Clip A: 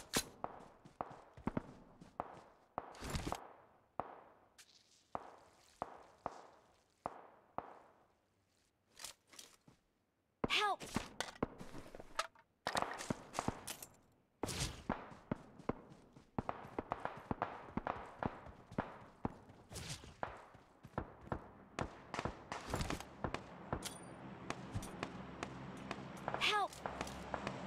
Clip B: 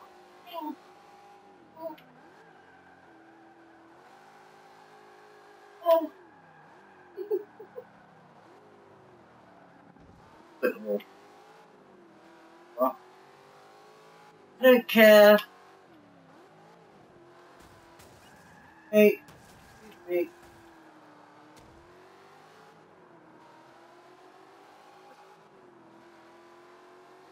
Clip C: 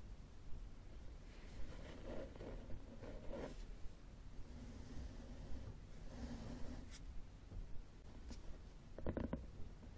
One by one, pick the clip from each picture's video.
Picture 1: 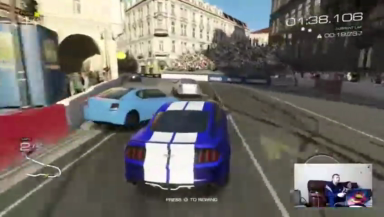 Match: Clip B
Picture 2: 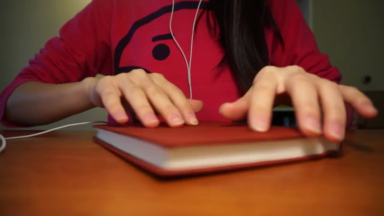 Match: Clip C